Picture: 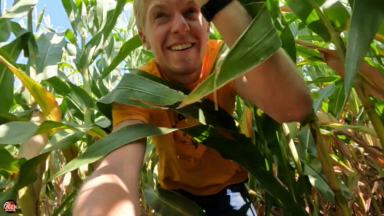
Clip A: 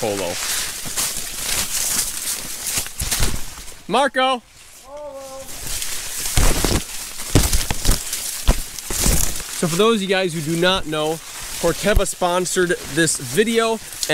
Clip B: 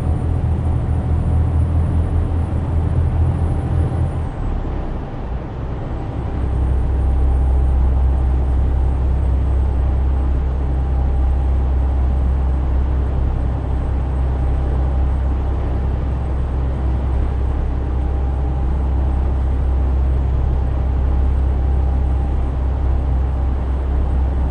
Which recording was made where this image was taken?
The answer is A